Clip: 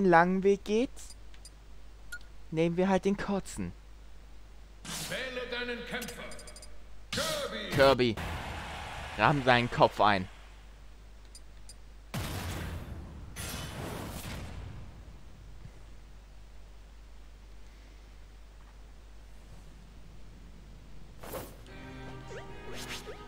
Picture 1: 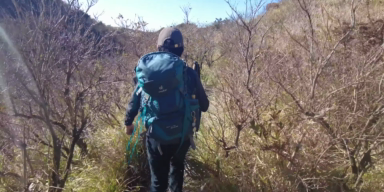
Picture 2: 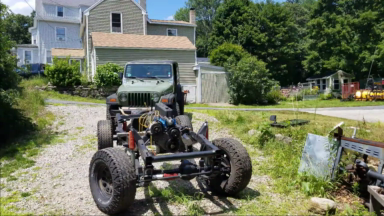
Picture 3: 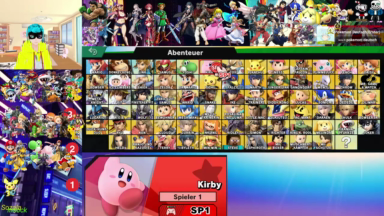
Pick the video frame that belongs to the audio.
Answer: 3